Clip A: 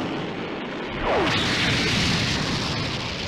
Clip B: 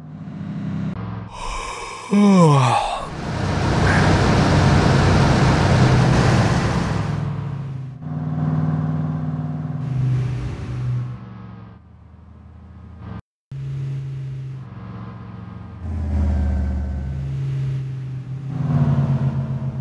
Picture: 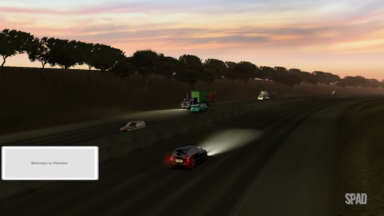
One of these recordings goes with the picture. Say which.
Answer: B